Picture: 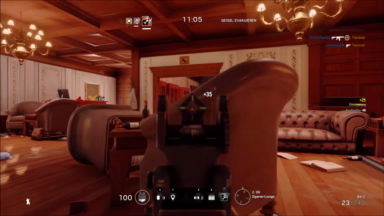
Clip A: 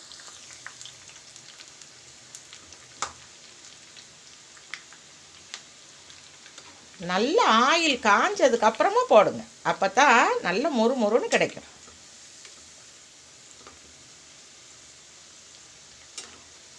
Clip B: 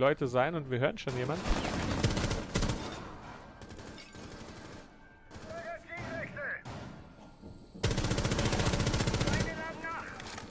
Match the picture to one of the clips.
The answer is B